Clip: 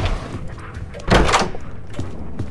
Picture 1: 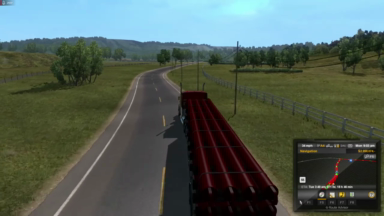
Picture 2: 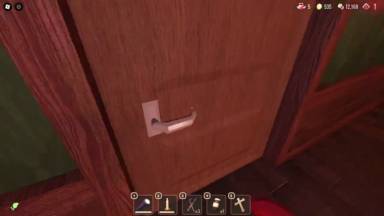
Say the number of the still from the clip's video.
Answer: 2